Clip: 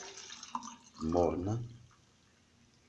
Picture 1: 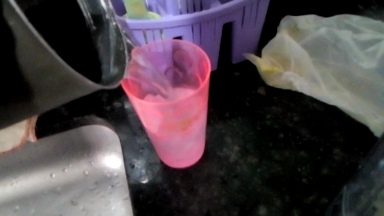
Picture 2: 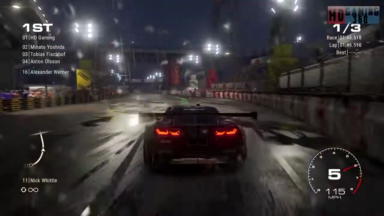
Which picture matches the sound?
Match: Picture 1